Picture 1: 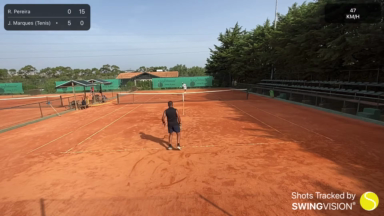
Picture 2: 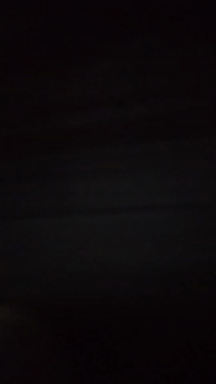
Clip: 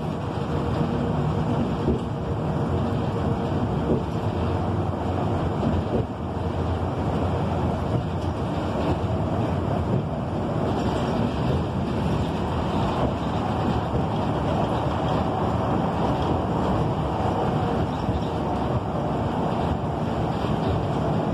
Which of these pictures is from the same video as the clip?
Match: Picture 2